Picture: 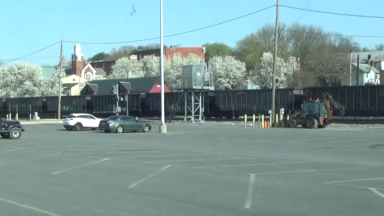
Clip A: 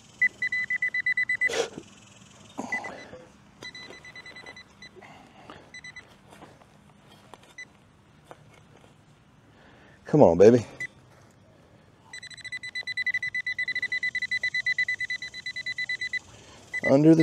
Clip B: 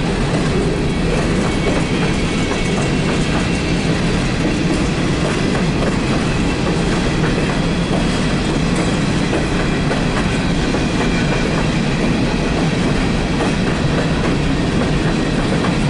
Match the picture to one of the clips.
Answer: B